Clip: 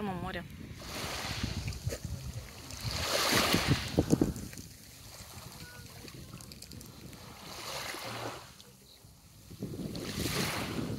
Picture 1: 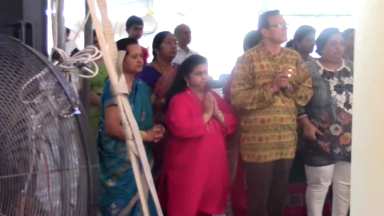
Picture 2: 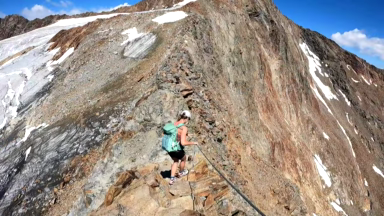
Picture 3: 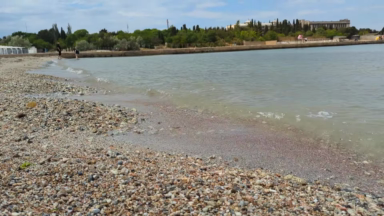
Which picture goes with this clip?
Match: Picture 3